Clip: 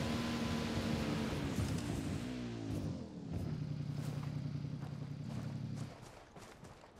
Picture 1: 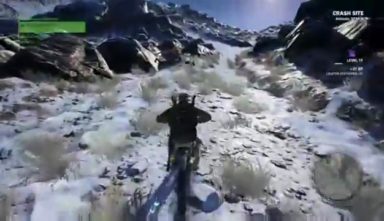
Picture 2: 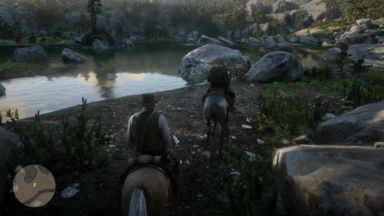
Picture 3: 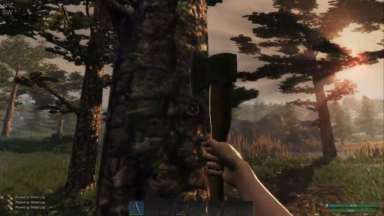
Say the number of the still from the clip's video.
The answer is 1